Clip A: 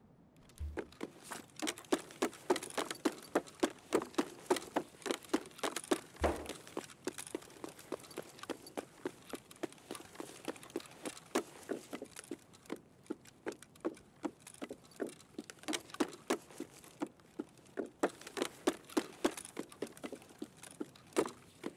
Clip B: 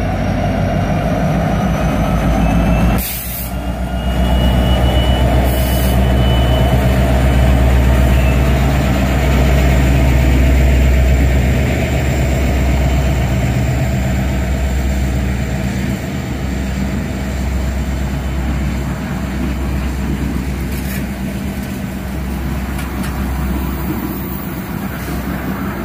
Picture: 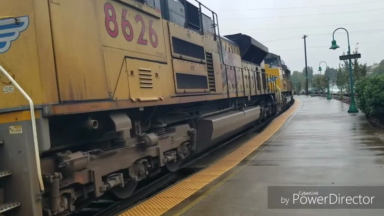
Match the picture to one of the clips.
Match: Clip B